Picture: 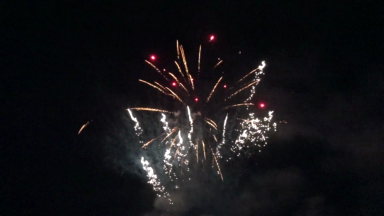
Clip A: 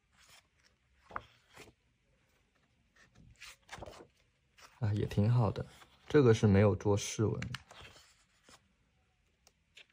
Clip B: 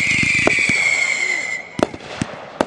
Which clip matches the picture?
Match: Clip B